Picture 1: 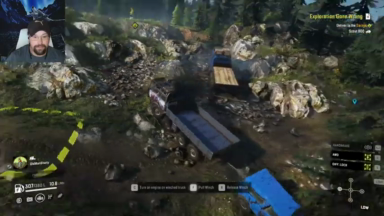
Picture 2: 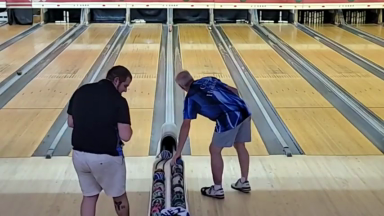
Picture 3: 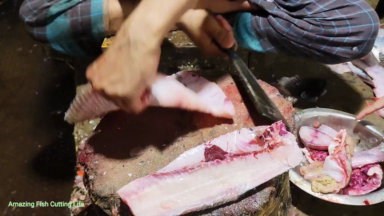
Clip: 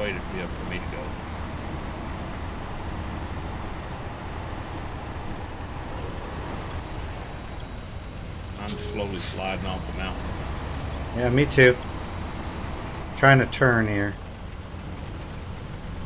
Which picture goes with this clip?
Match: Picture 1